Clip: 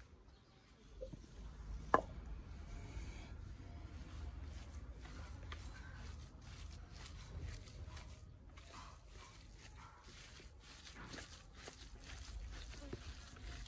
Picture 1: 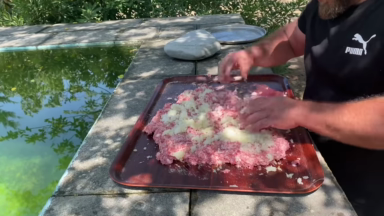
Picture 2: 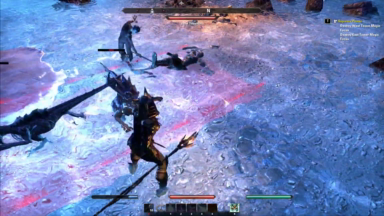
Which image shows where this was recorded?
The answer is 1